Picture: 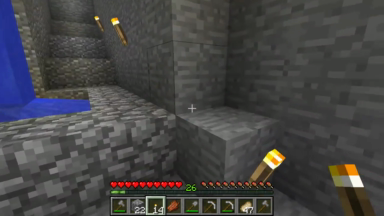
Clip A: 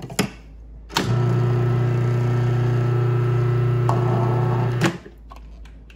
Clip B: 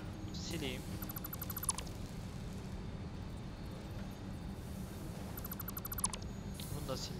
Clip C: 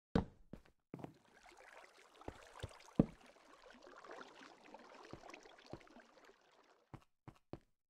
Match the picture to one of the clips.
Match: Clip C